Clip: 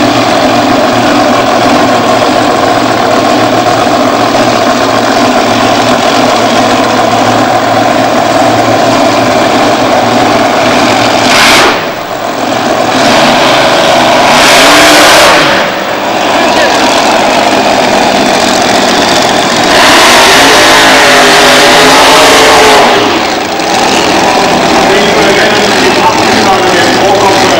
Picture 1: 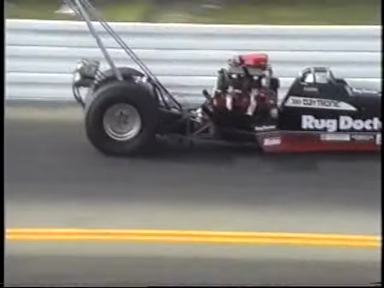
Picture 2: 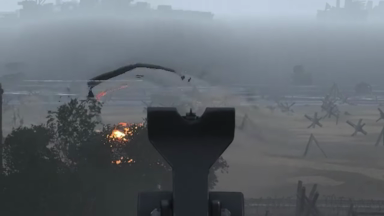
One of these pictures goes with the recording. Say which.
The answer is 1